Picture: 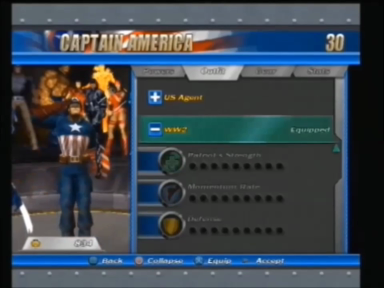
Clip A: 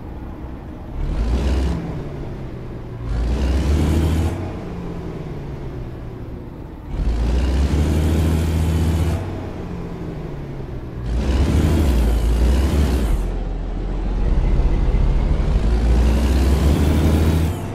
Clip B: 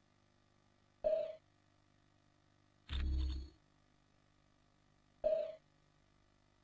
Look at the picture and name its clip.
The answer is B